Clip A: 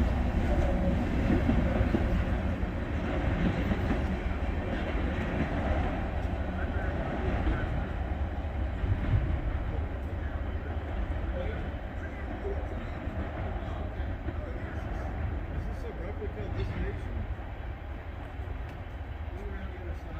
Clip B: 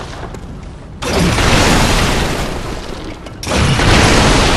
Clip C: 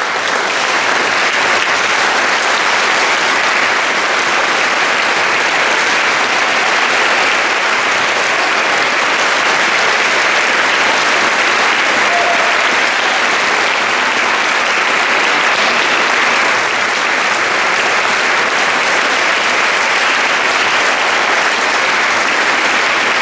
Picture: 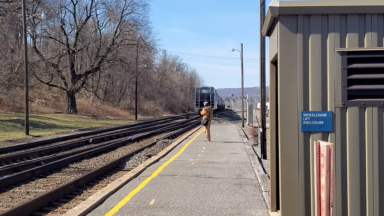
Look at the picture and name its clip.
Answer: A